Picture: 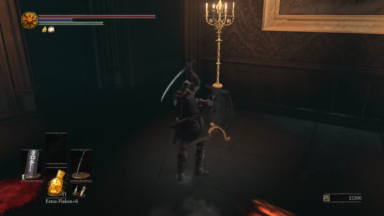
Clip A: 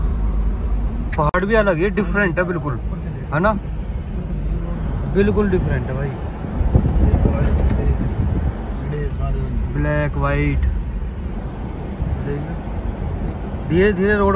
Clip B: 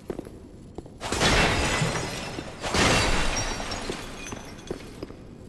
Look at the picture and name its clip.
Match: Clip B